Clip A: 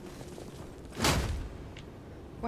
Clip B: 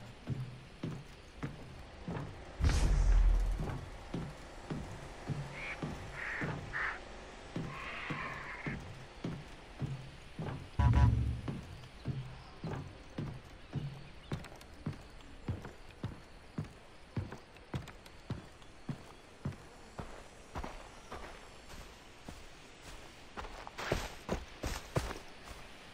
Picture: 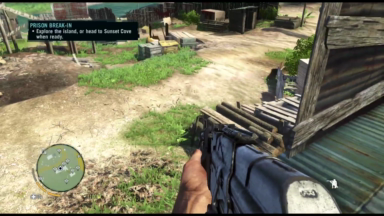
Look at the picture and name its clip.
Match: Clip B